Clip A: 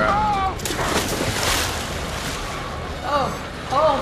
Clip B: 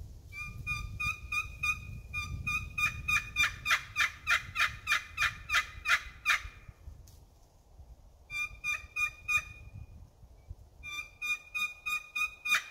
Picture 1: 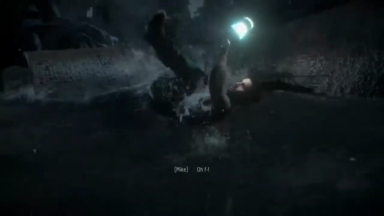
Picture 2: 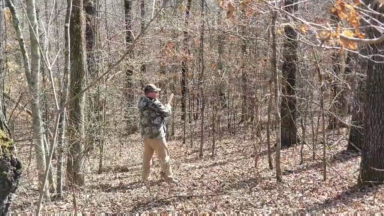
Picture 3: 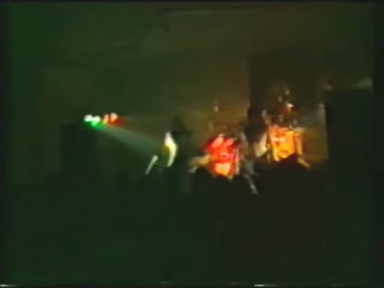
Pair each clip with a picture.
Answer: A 1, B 2